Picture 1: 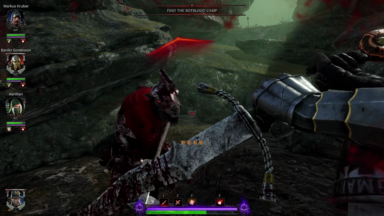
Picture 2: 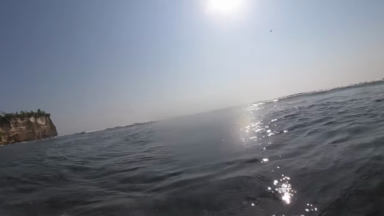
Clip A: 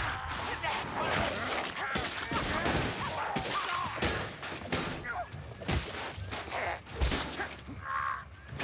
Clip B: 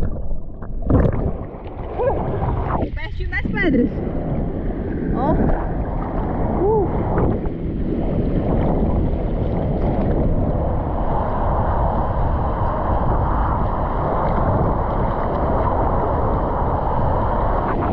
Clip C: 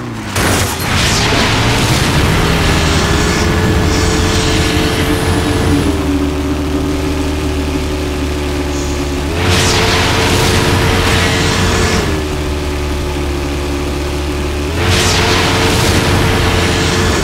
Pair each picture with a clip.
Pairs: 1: A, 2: B